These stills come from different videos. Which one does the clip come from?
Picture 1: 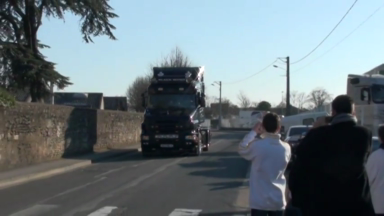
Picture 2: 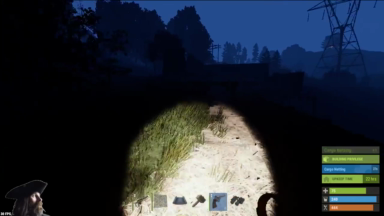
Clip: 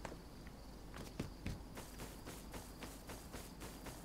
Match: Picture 2